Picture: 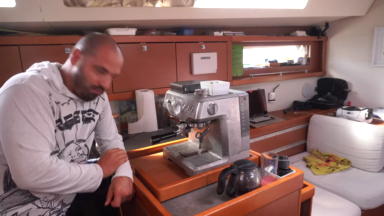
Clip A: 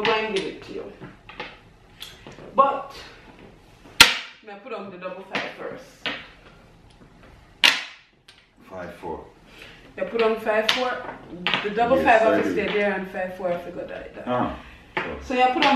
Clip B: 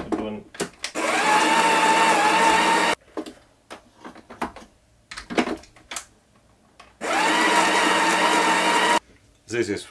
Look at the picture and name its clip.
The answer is B